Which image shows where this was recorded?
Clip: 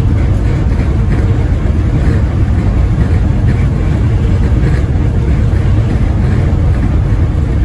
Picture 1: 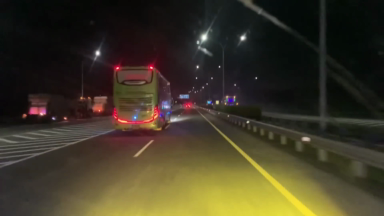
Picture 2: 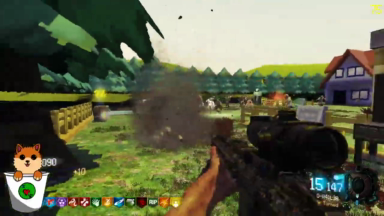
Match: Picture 1